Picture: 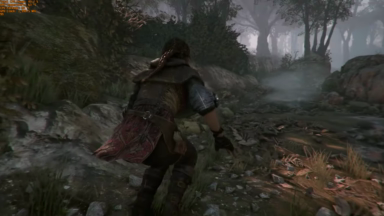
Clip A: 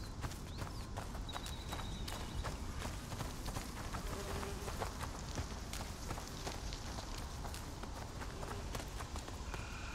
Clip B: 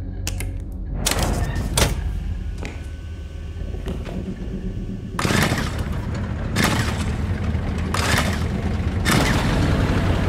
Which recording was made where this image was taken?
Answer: A